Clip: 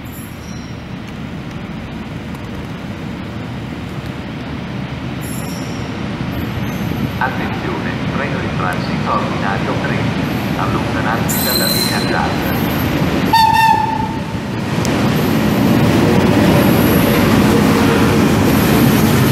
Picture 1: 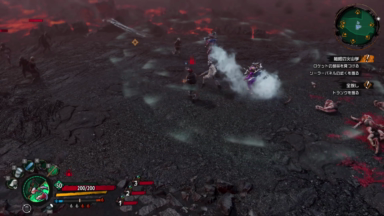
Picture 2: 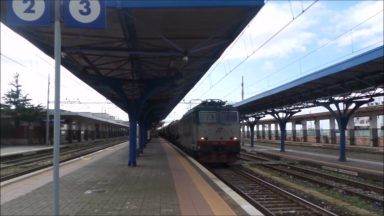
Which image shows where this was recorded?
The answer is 2